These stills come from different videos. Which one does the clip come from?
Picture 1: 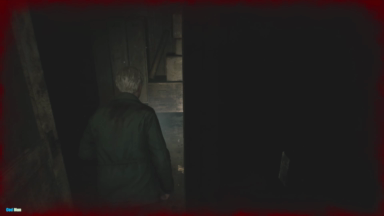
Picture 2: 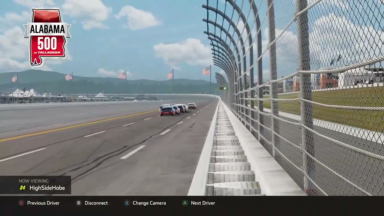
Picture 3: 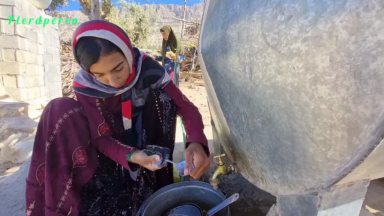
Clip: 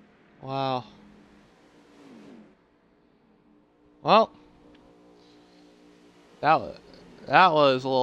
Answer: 2